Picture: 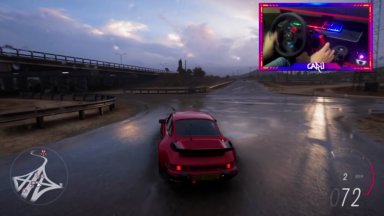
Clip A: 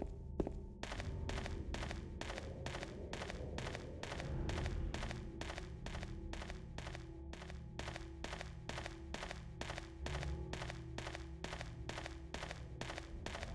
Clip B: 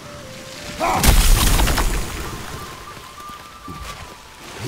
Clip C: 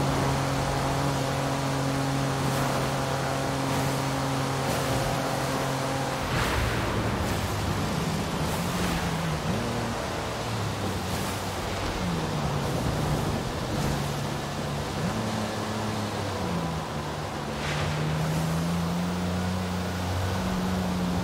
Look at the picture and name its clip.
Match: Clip C